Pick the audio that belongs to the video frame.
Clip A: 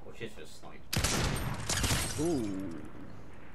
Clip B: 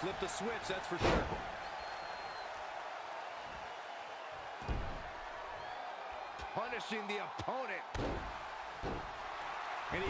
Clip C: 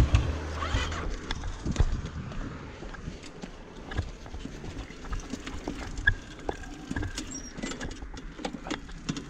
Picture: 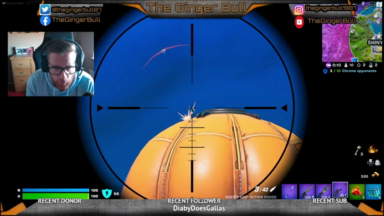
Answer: A